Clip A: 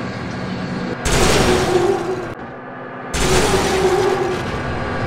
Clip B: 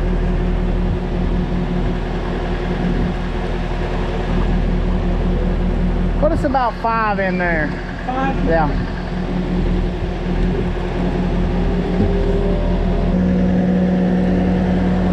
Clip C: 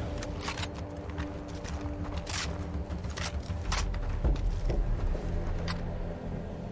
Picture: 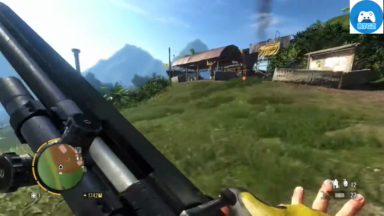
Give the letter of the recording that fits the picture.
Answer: C